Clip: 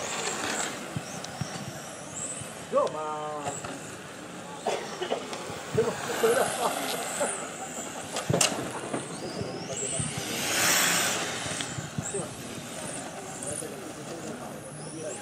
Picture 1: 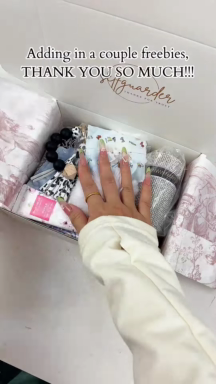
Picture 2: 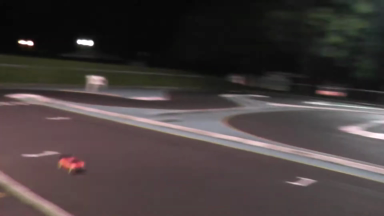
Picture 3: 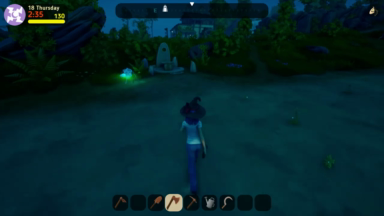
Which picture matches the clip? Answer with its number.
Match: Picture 2